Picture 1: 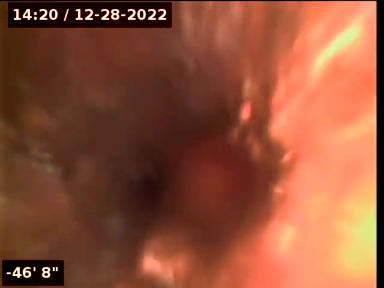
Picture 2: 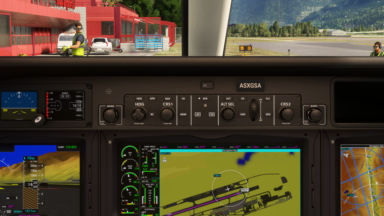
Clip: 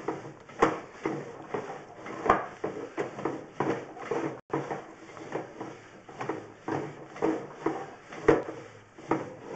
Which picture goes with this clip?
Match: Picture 1